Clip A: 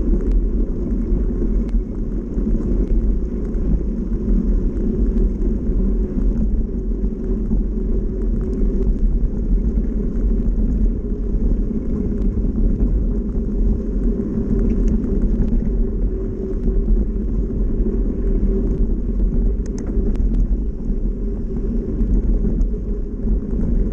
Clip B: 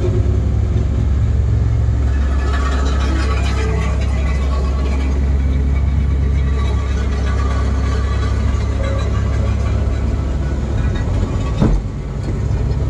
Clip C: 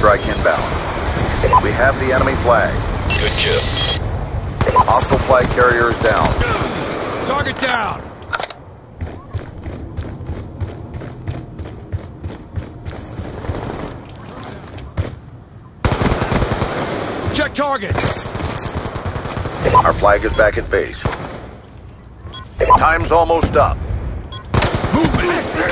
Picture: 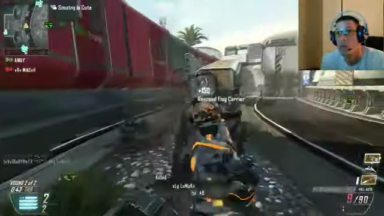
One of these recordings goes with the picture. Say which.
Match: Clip C